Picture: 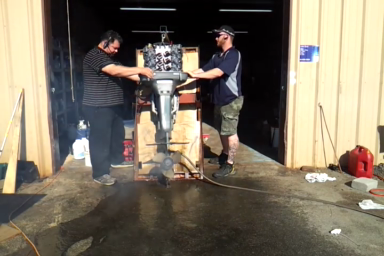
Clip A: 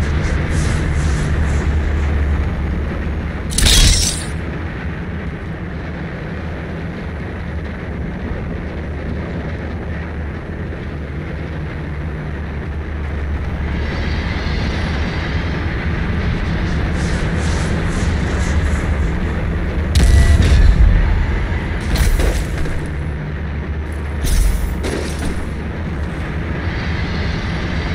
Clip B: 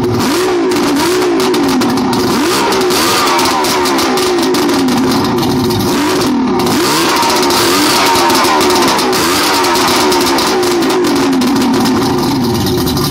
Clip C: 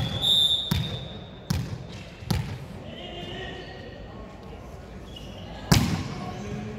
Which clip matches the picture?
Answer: B